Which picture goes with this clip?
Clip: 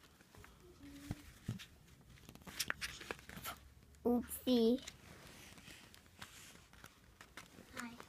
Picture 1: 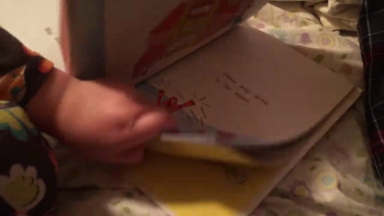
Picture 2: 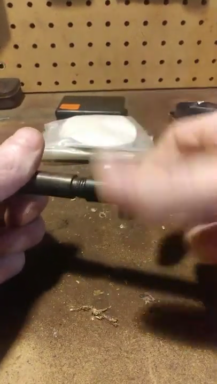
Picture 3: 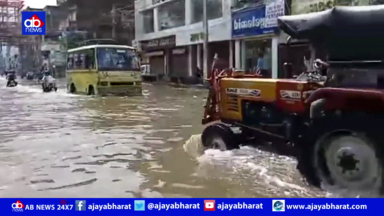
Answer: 1